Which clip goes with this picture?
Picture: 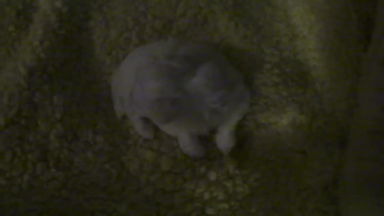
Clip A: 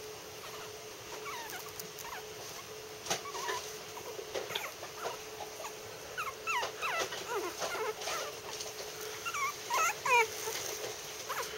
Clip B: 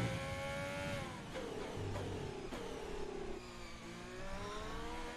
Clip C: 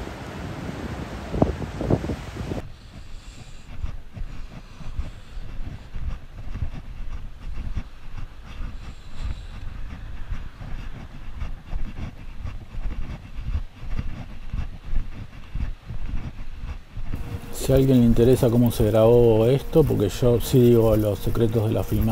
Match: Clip A